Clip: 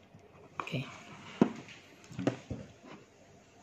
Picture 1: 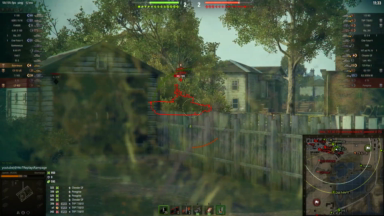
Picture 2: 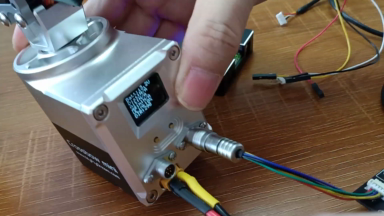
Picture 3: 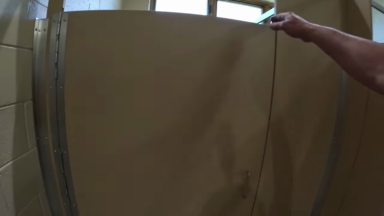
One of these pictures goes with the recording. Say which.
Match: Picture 2